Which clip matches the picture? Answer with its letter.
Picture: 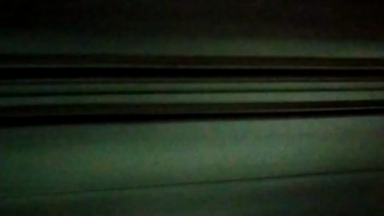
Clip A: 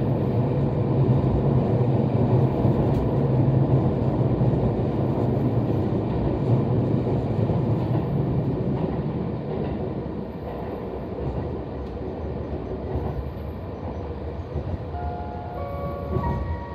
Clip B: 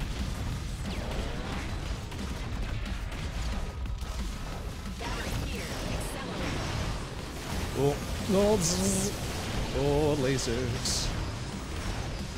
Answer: A